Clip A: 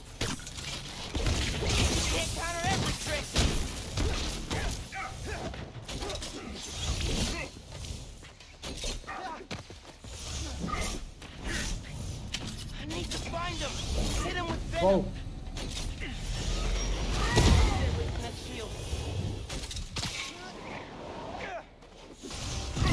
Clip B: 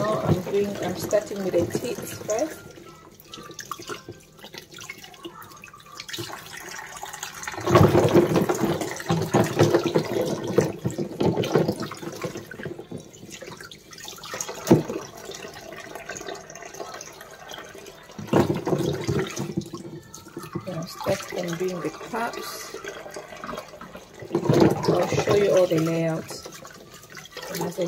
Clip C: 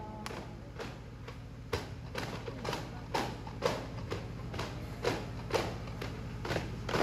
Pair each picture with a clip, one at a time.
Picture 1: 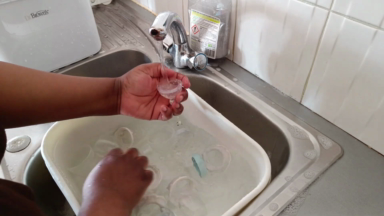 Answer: B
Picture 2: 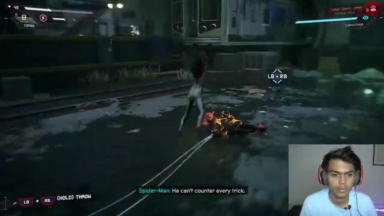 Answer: A